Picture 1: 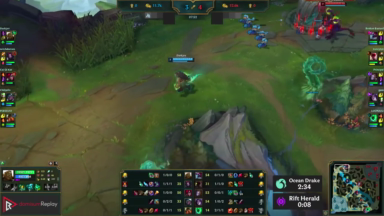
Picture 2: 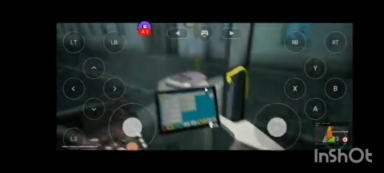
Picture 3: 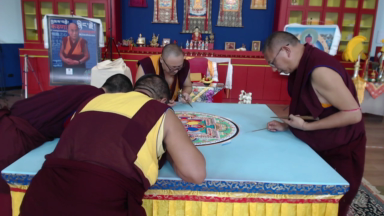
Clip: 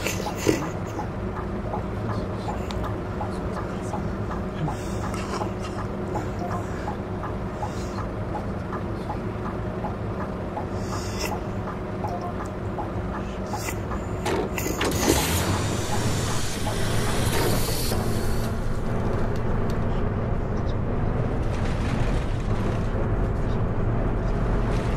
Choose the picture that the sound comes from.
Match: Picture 2